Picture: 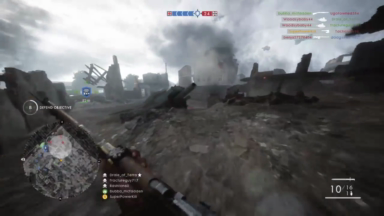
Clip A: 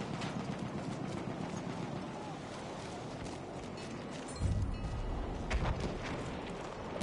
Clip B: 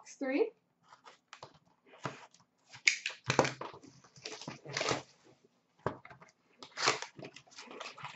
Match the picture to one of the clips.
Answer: A